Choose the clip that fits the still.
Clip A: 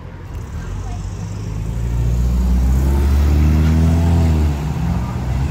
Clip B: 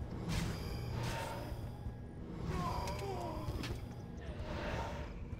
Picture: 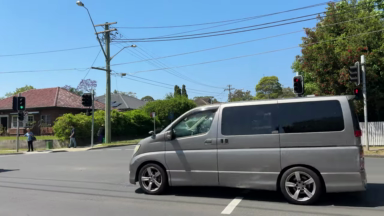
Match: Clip A